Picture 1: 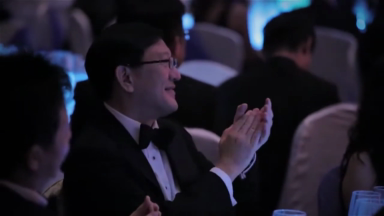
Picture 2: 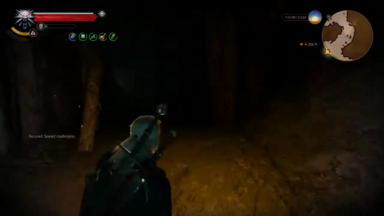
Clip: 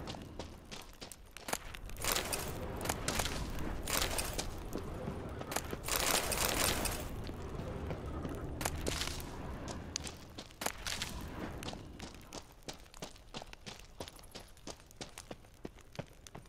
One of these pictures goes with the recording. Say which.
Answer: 2